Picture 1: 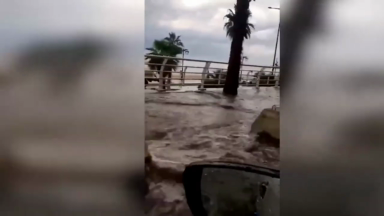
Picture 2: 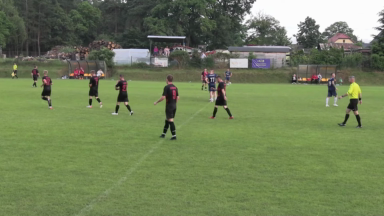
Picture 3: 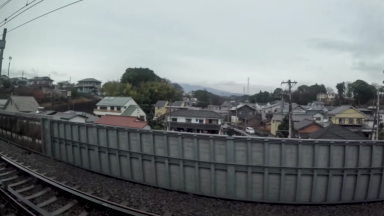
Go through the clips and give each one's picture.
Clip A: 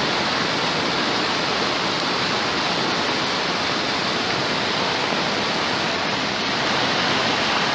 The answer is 1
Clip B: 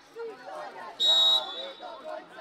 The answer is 2